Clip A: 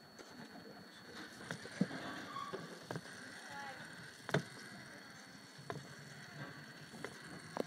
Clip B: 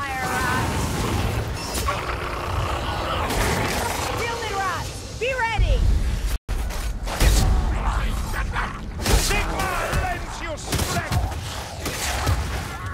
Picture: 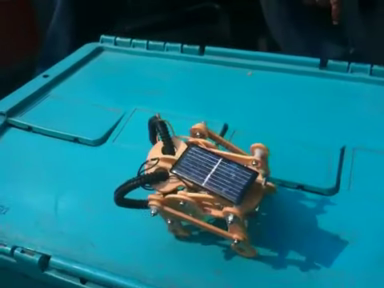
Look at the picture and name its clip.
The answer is A